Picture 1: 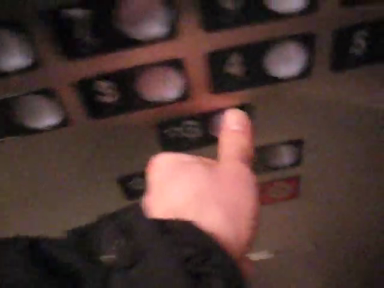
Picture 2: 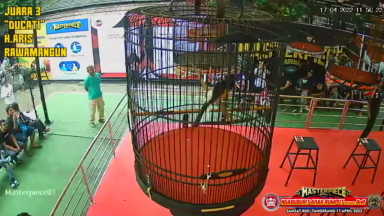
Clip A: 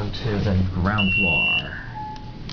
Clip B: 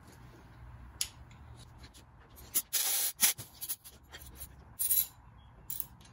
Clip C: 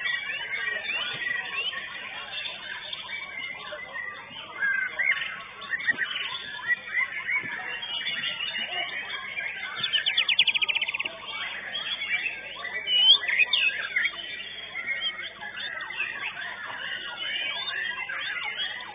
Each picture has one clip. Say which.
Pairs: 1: A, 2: C